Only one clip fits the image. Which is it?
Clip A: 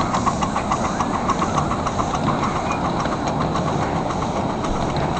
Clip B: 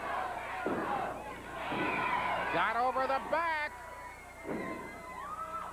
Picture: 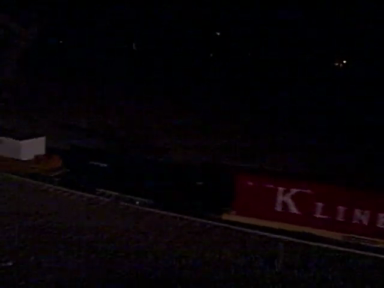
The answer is A